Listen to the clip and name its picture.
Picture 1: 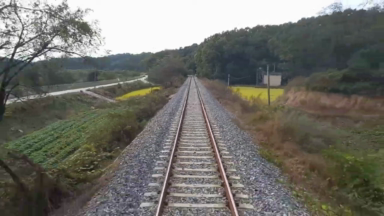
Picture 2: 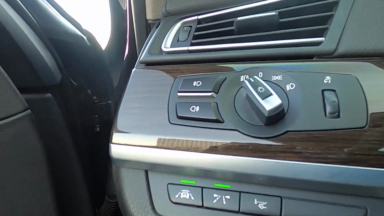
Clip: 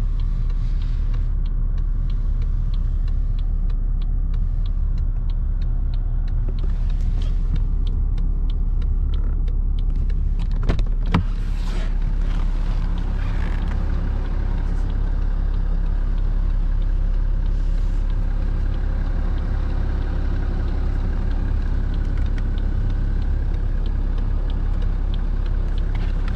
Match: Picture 2